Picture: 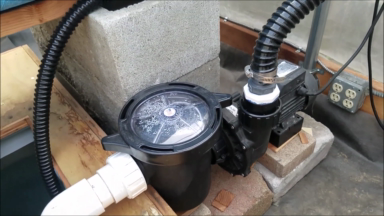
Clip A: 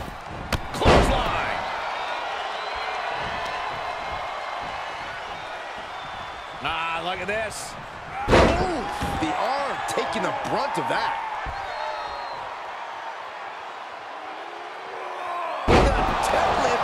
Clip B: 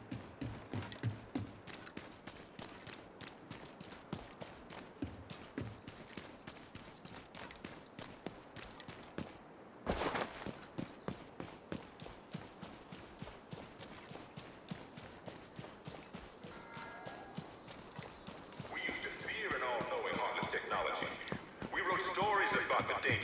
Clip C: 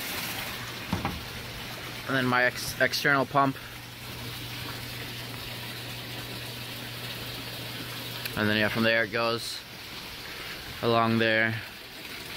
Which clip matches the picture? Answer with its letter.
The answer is C